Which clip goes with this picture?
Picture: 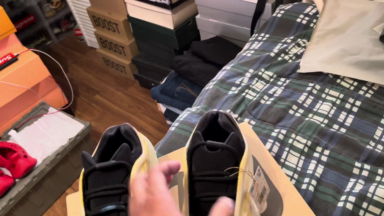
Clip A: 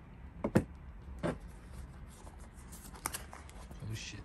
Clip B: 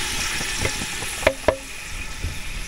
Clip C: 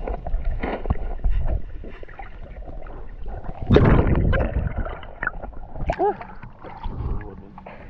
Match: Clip A